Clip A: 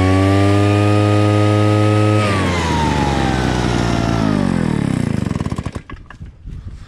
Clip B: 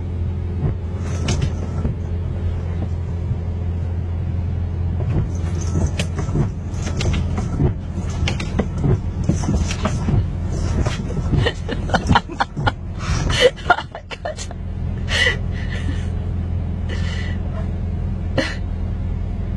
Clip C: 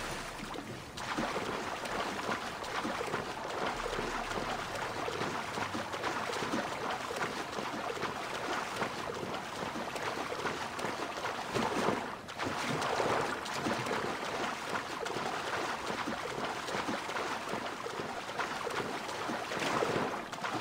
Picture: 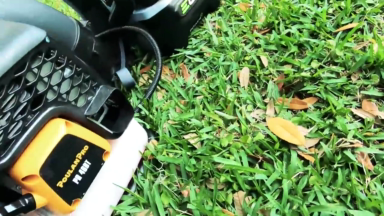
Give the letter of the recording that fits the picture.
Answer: A